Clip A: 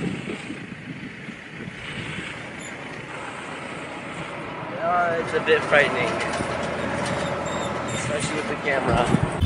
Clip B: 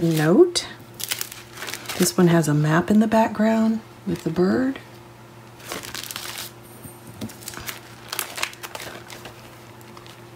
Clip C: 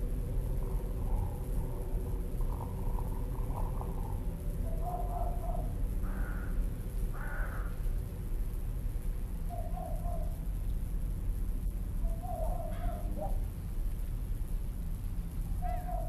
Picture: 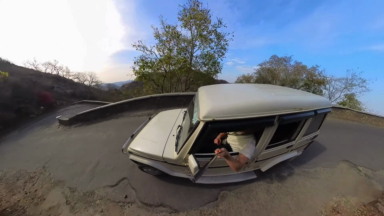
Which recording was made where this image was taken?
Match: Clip A